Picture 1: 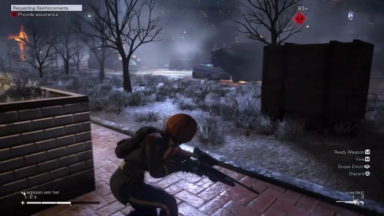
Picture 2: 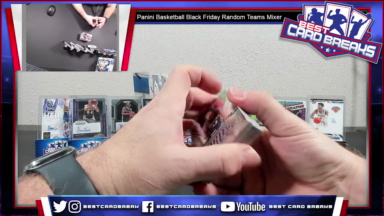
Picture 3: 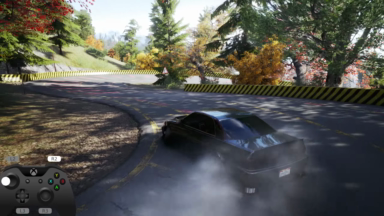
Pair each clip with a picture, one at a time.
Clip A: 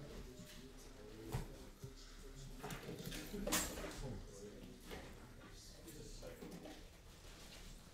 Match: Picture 2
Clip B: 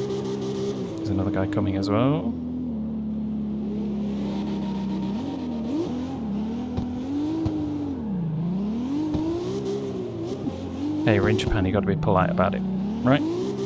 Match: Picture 3